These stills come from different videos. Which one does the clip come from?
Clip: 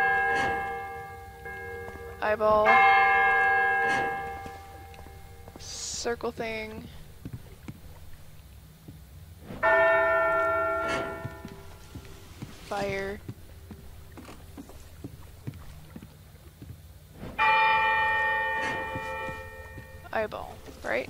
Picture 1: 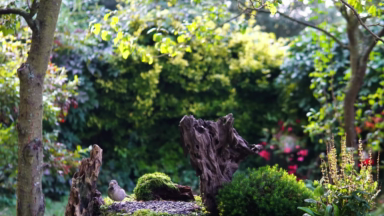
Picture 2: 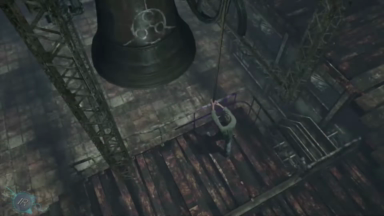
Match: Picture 2